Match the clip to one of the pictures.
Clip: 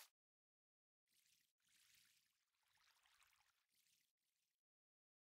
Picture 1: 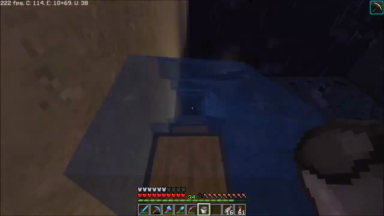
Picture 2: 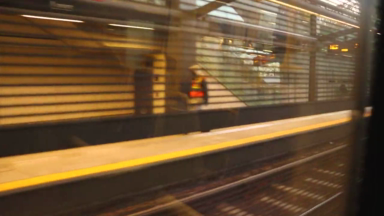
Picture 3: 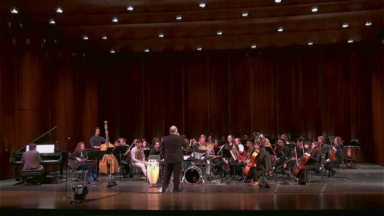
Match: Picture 1